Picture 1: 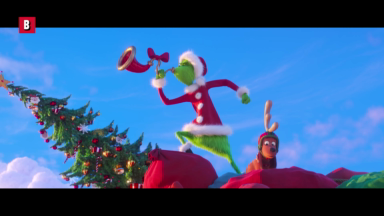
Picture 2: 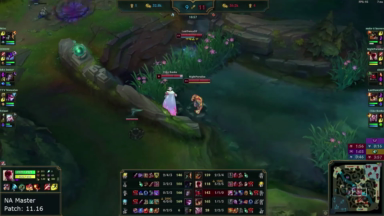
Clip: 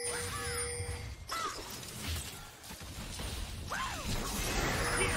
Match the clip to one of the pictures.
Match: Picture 2